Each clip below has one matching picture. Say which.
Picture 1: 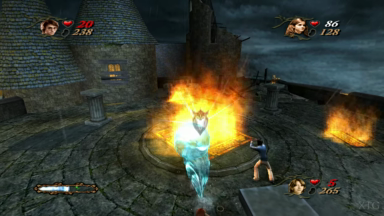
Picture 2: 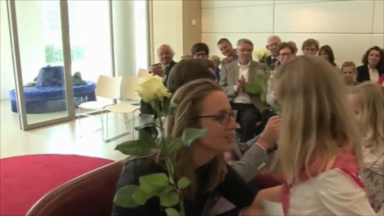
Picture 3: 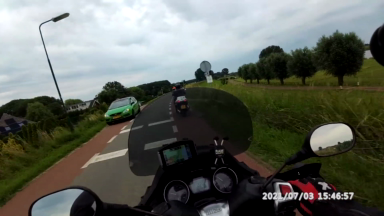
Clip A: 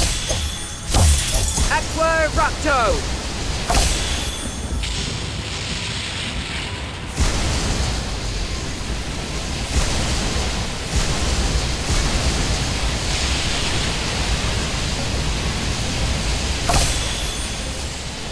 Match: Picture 1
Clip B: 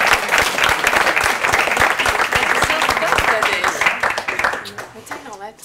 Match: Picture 2